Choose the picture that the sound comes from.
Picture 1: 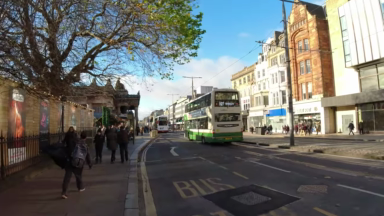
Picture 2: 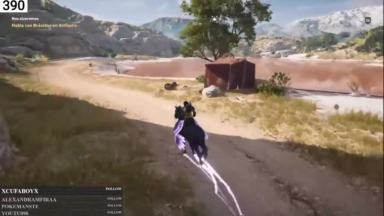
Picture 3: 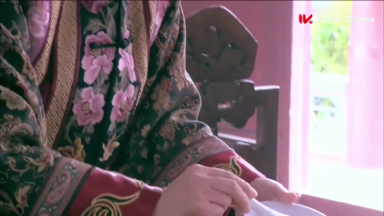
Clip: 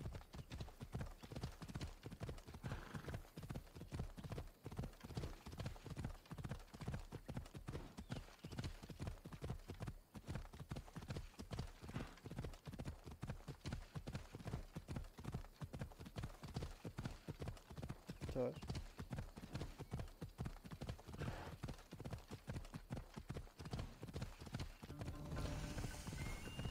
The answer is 2